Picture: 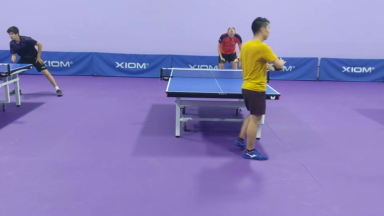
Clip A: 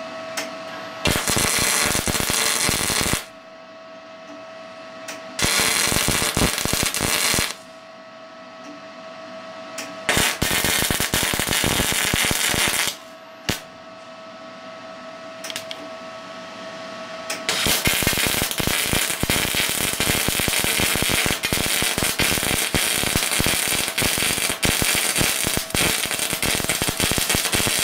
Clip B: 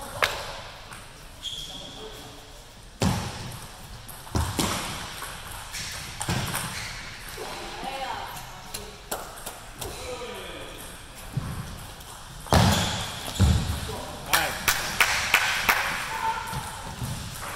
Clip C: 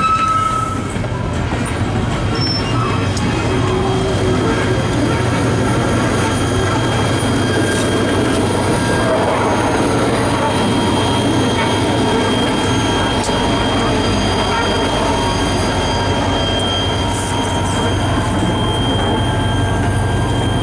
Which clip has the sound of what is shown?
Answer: B